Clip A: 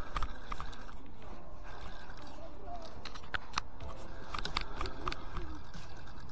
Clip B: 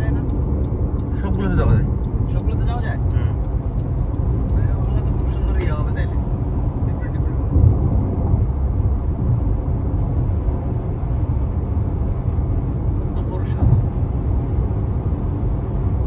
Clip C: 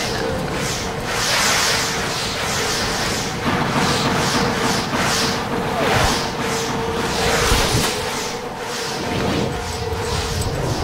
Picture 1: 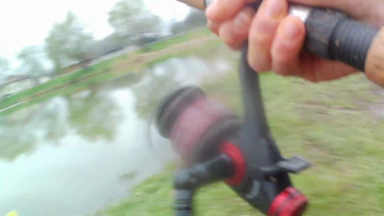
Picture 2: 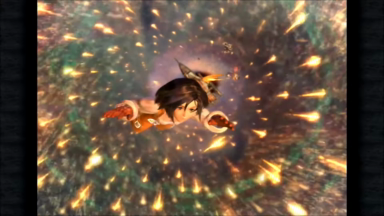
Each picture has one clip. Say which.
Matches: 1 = A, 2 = C